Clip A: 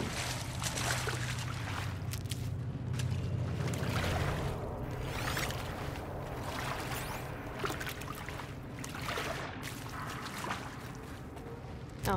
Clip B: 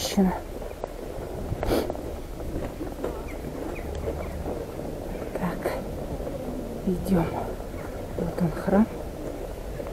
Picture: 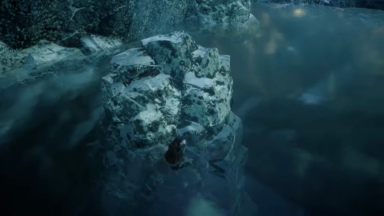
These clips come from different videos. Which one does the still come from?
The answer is A